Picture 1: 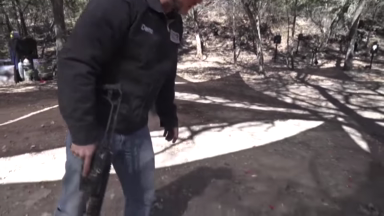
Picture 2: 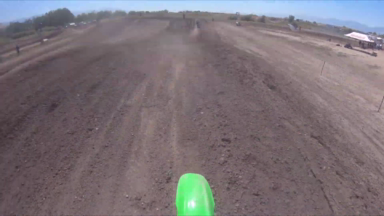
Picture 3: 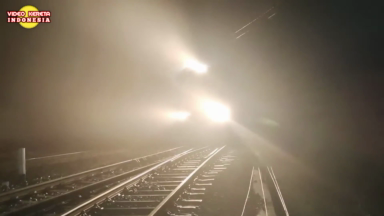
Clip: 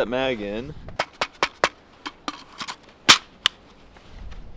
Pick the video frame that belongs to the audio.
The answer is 1